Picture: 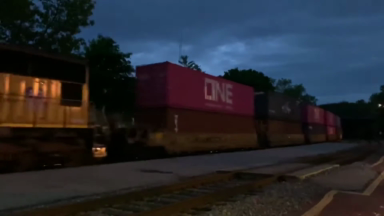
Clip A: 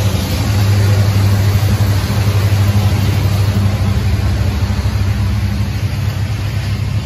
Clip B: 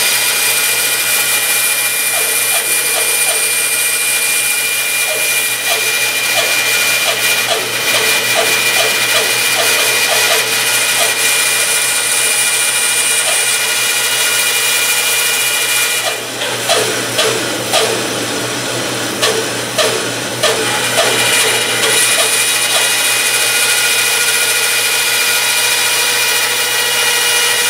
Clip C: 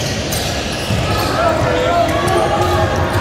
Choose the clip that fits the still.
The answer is A